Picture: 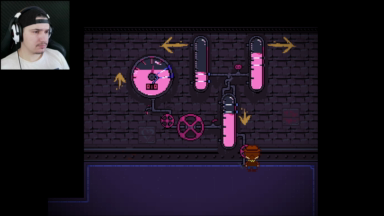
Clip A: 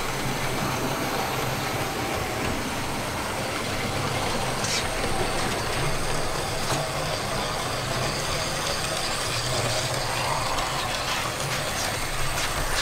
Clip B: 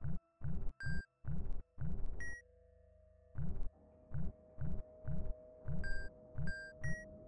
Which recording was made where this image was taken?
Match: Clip B